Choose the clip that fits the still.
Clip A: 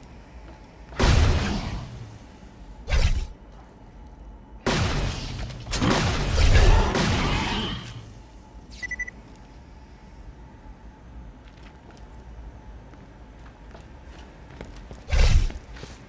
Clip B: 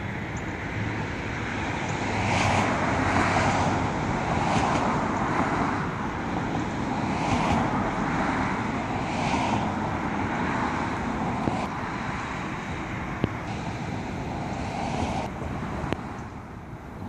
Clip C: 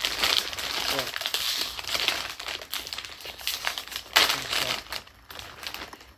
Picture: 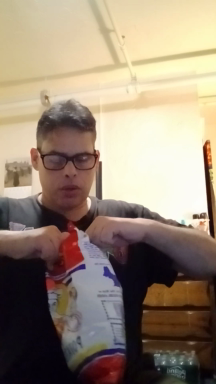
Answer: C